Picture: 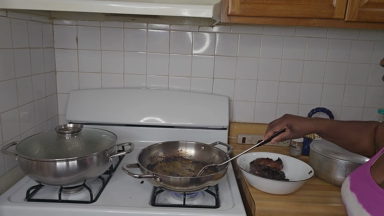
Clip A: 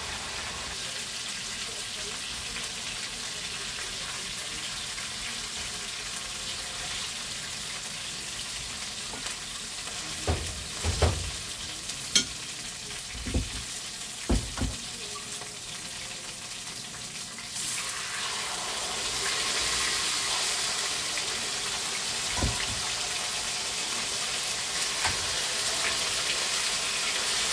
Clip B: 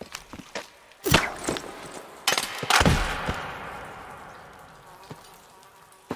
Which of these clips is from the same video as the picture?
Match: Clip A